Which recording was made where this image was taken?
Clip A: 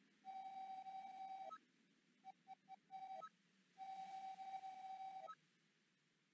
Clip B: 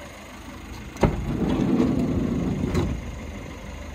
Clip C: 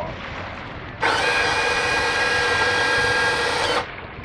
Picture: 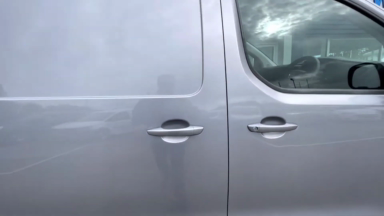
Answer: B